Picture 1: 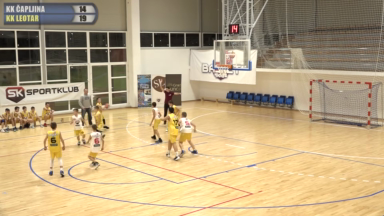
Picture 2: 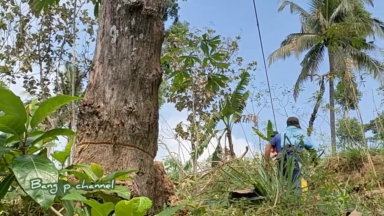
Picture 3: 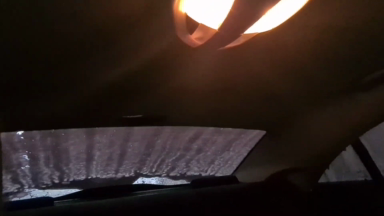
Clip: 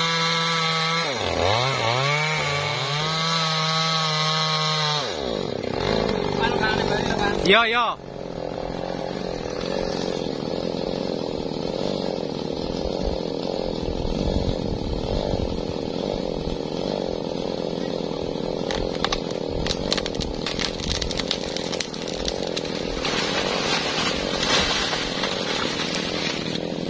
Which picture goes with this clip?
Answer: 2